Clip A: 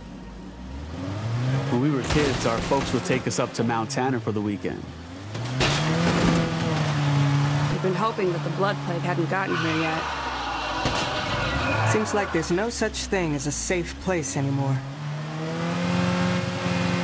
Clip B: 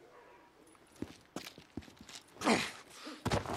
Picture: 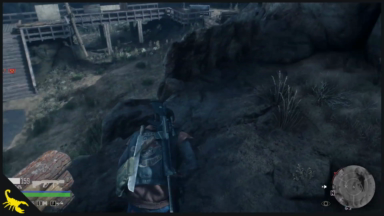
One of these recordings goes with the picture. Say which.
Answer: B